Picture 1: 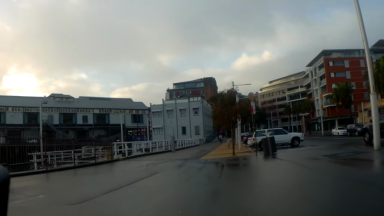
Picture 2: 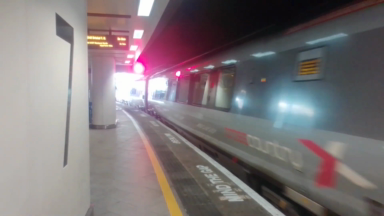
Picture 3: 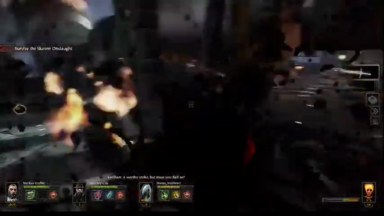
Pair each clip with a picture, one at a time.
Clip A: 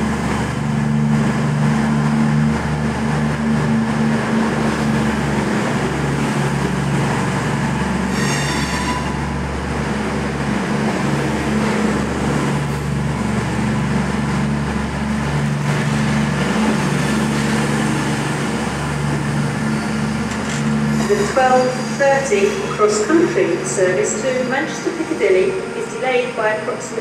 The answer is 2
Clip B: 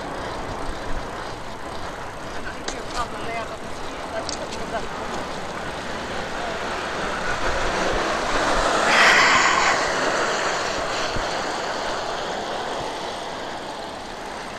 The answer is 1